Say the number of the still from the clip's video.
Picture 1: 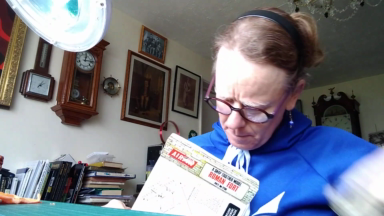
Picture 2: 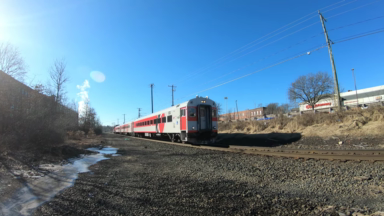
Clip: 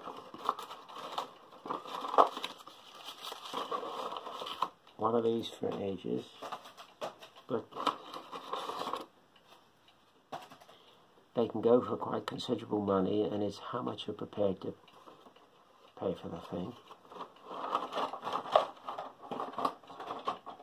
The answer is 1